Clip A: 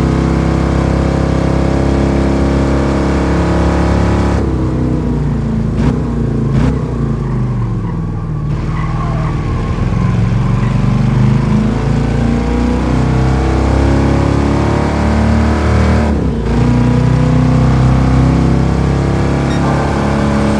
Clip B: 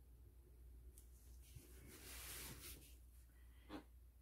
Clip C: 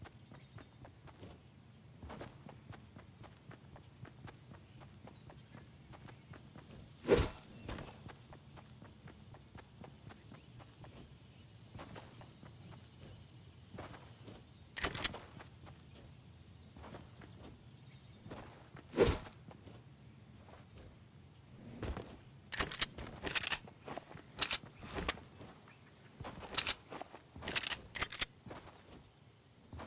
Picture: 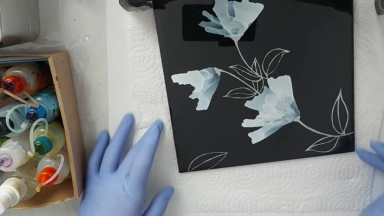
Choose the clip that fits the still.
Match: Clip B